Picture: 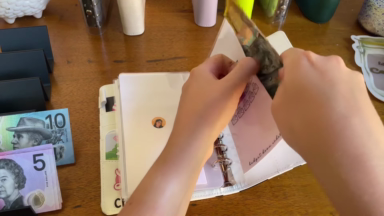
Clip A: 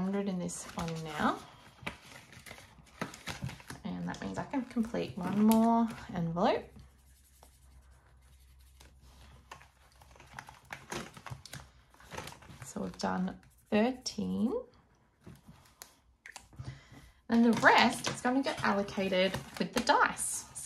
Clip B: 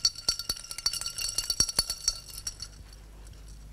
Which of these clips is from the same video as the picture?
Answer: A